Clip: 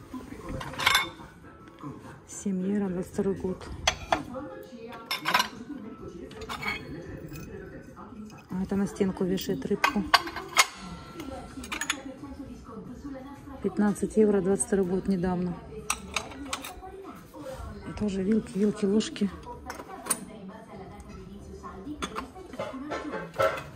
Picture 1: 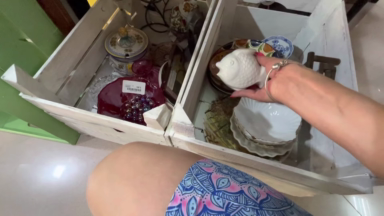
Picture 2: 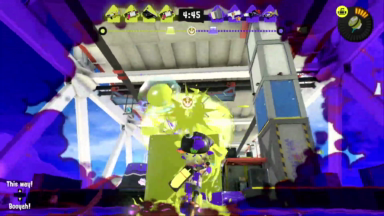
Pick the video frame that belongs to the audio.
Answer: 1